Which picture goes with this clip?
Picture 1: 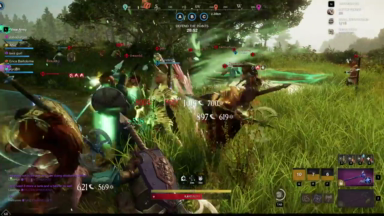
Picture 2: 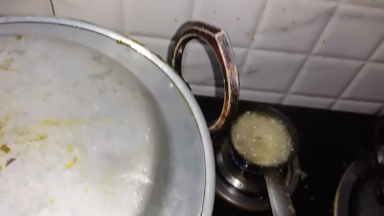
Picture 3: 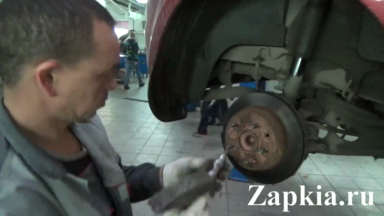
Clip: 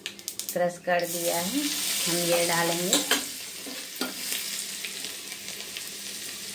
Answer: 2